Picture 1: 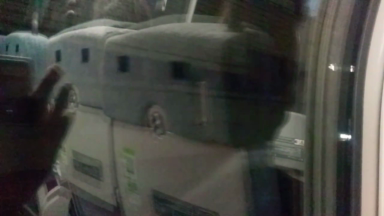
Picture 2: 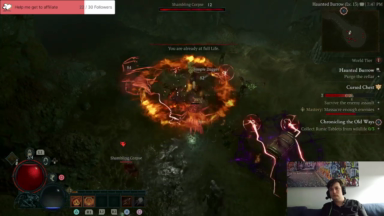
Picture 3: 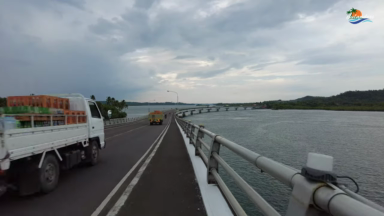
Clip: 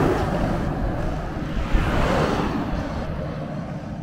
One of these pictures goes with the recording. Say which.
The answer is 3